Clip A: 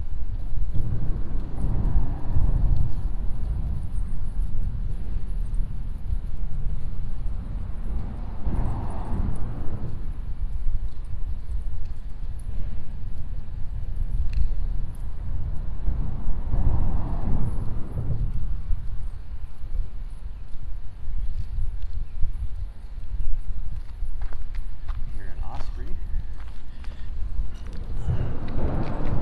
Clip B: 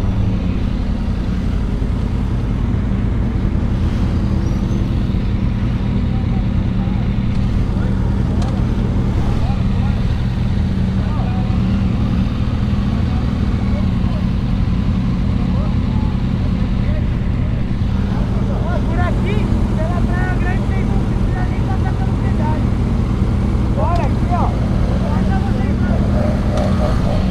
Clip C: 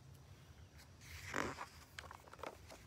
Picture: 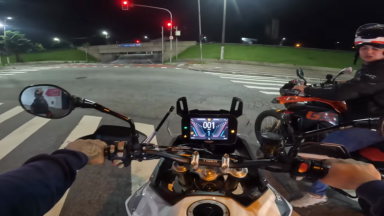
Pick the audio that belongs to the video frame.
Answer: B